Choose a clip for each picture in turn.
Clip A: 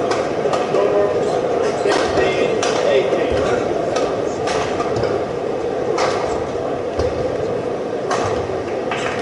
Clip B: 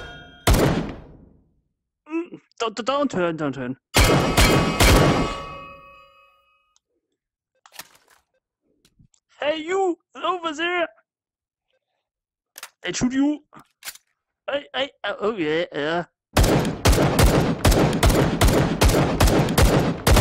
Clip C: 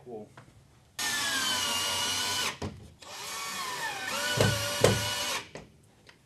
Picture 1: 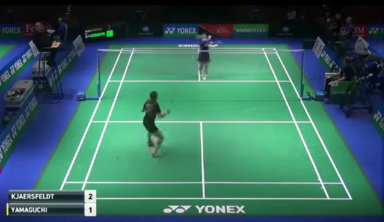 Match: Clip A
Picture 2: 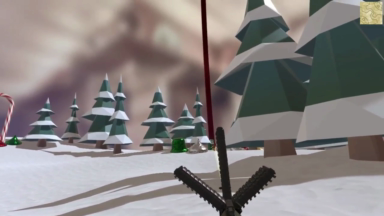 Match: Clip B